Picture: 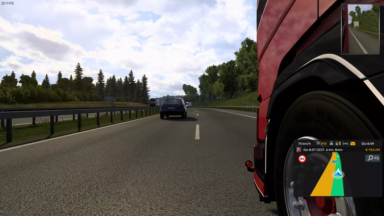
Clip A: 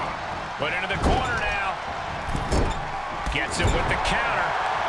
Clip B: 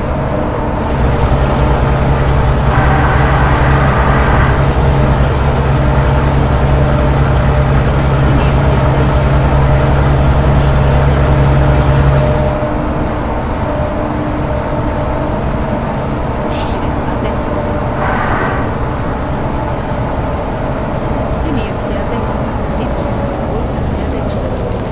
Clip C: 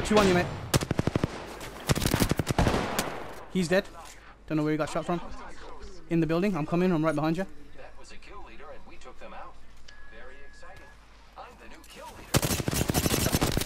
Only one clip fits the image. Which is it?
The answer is B